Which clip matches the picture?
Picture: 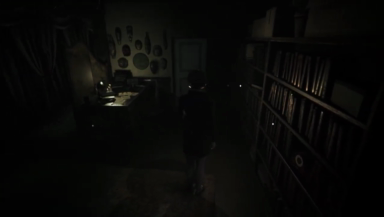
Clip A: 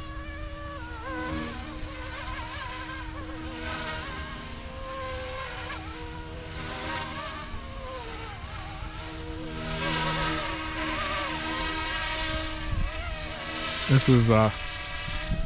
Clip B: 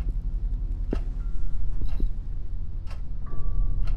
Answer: B